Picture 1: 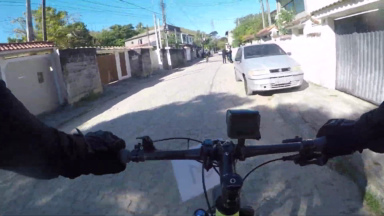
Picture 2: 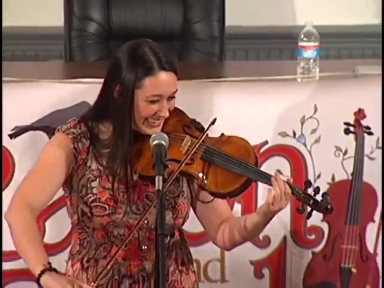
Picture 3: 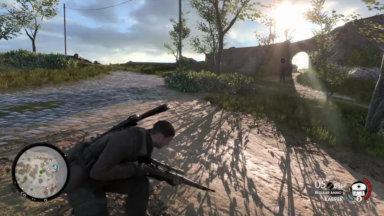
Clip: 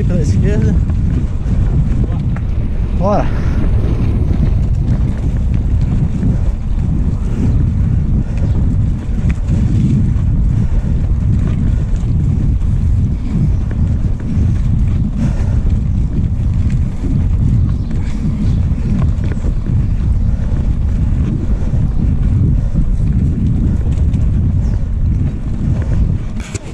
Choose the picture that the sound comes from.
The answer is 1